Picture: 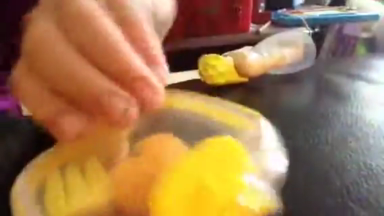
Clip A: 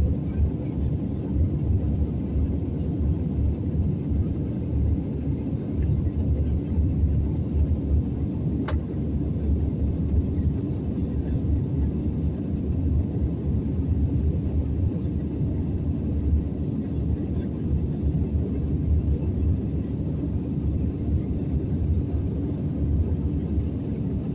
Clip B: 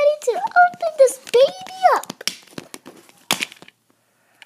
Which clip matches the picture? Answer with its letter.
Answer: B